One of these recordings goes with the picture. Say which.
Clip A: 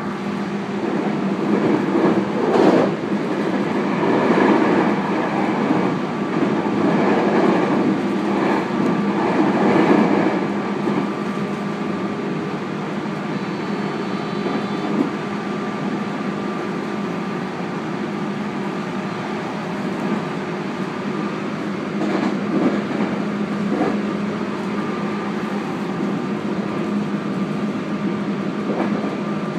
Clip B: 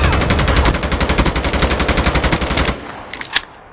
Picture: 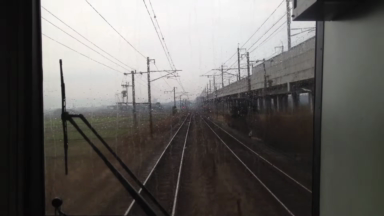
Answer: A